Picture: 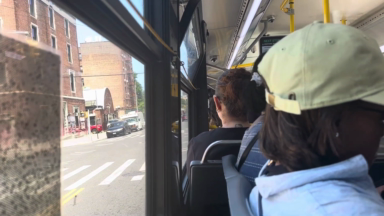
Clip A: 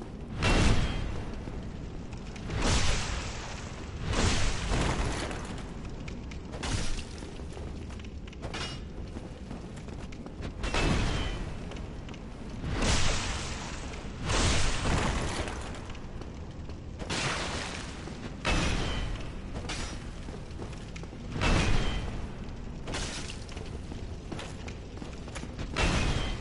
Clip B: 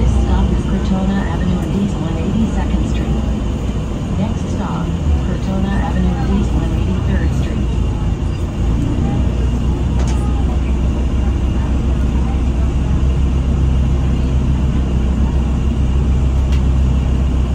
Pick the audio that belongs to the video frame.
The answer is B